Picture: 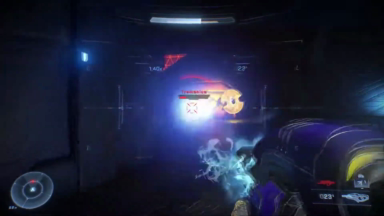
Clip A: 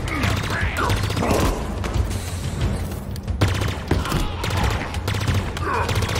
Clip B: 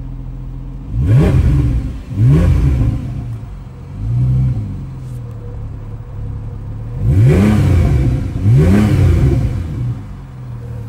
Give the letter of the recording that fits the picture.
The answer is A